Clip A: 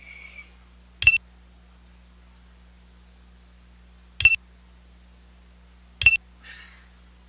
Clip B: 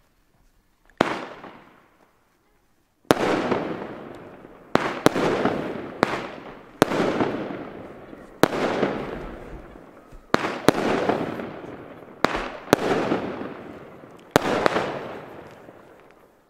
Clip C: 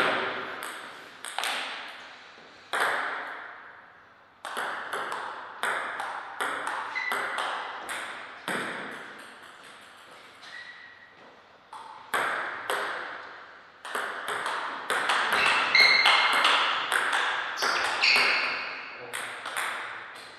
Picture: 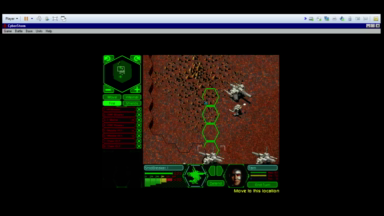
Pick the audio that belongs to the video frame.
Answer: A